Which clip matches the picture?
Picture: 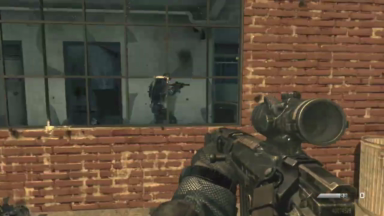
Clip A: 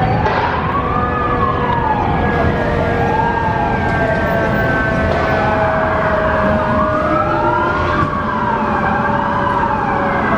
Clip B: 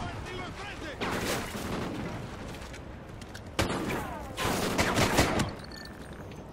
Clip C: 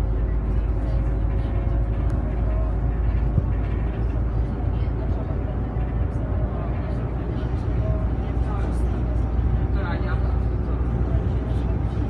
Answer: B